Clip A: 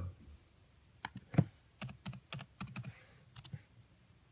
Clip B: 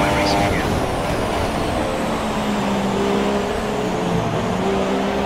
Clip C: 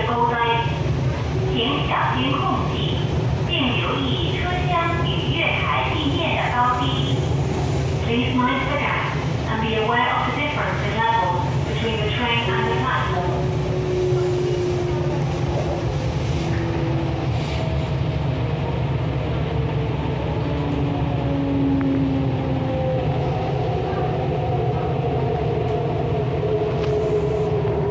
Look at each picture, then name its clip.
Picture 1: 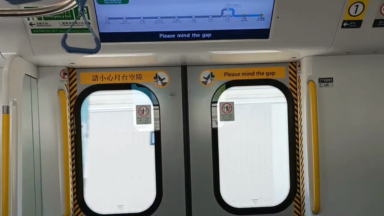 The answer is C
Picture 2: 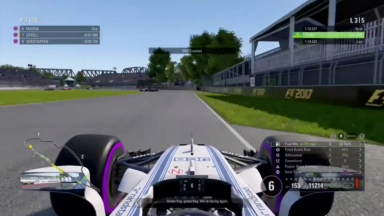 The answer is B